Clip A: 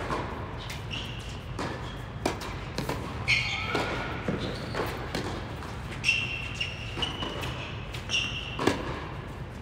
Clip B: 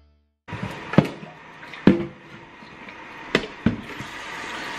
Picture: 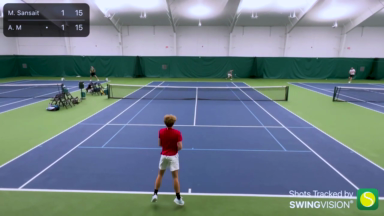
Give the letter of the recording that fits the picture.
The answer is A